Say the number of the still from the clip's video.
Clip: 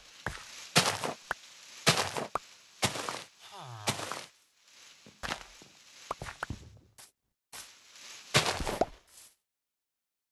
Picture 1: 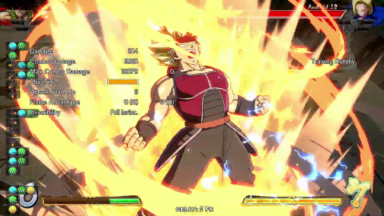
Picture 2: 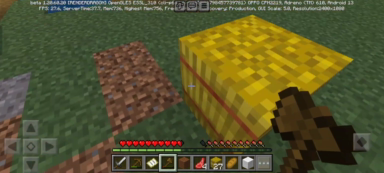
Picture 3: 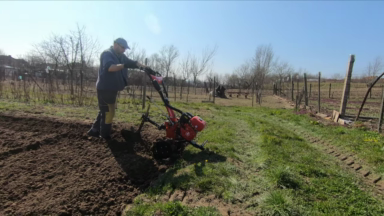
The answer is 2